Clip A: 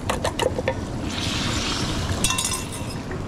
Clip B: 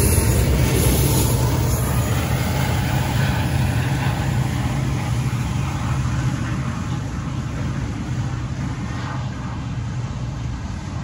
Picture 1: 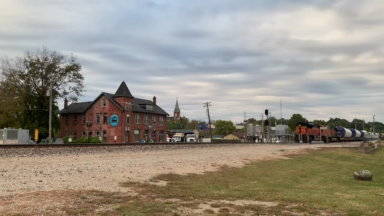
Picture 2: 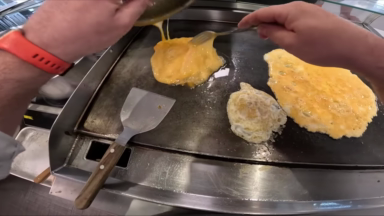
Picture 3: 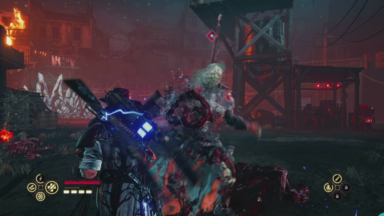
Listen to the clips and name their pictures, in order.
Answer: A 2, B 1